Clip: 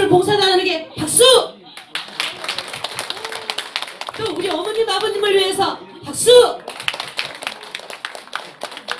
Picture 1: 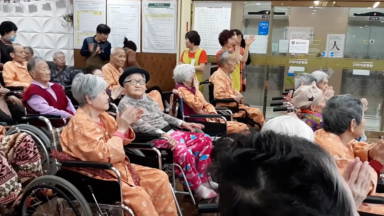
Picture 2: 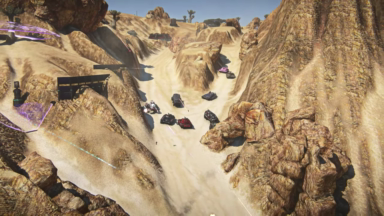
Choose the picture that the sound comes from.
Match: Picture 1